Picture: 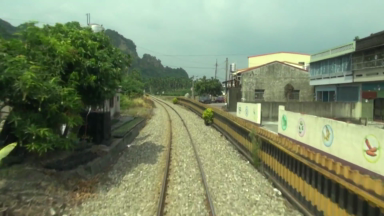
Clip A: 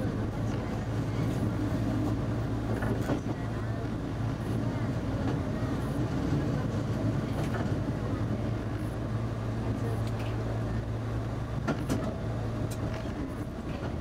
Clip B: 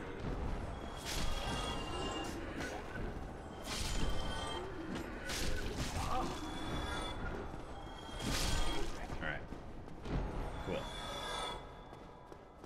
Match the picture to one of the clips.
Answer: A